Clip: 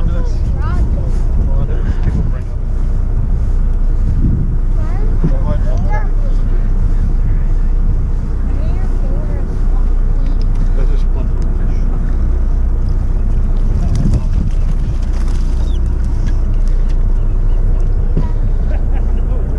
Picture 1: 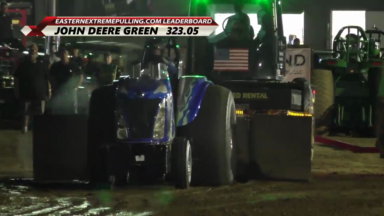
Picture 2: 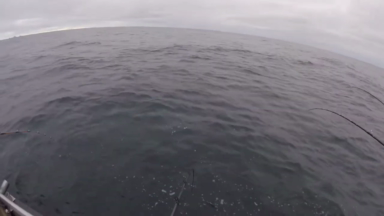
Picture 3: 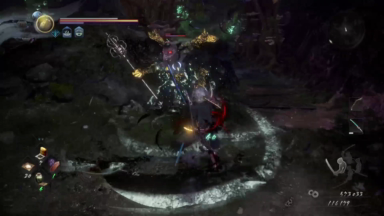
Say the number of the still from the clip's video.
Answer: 2